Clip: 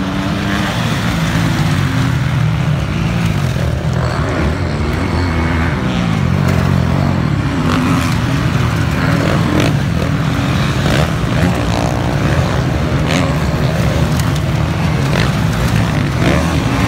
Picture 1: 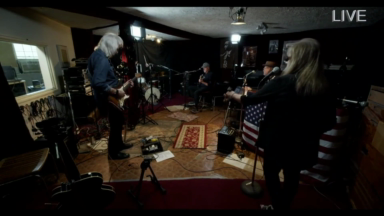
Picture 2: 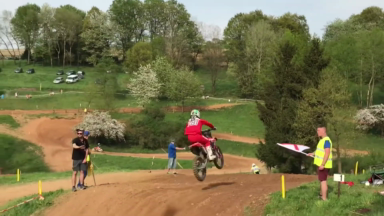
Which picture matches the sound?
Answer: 2